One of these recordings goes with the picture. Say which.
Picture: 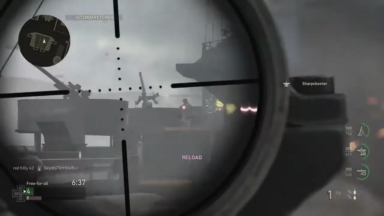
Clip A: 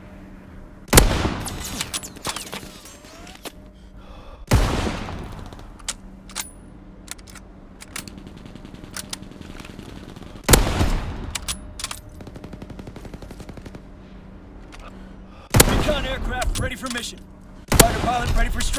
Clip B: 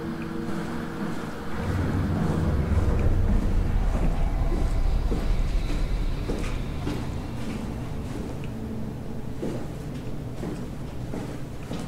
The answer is A